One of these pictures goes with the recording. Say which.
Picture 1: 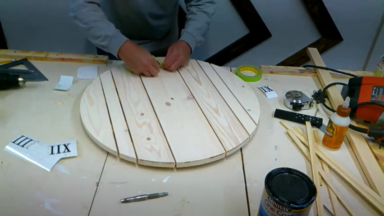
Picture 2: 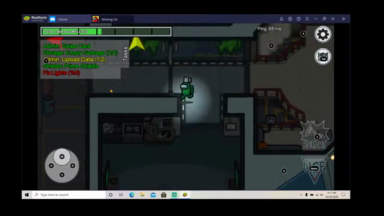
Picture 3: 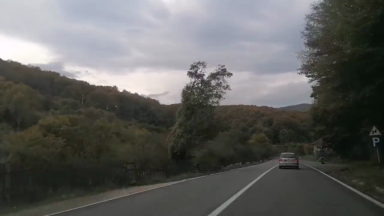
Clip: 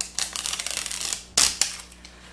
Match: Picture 1